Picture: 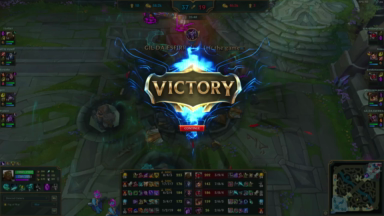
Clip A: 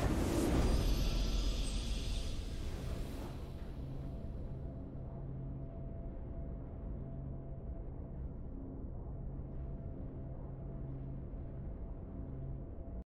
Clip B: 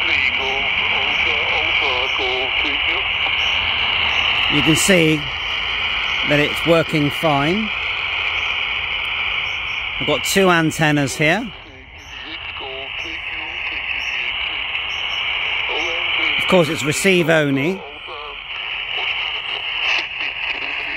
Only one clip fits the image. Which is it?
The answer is A